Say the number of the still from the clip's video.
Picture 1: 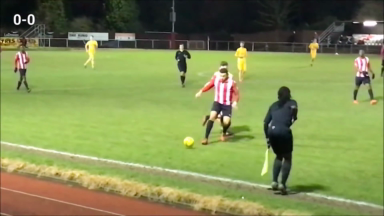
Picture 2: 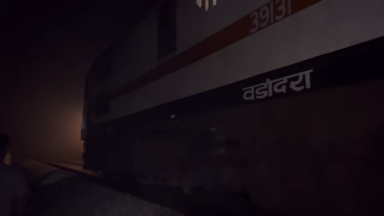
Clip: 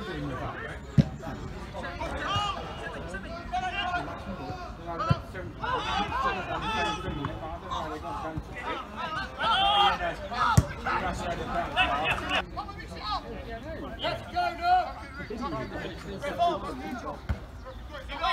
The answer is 1